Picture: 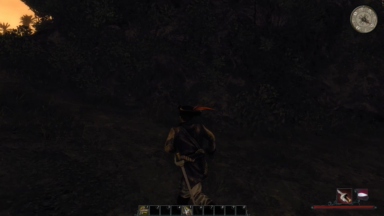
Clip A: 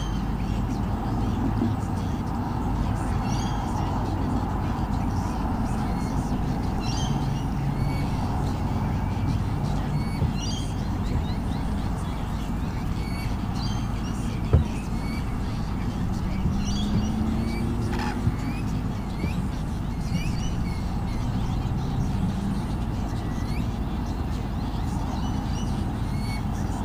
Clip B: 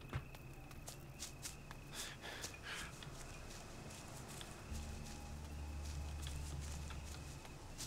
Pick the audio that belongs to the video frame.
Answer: B